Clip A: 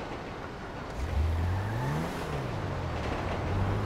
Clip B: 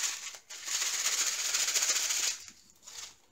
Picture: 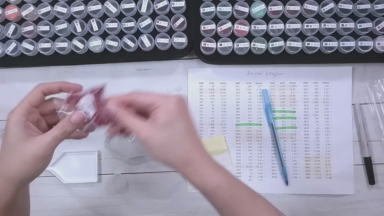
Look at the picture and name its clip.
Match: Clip B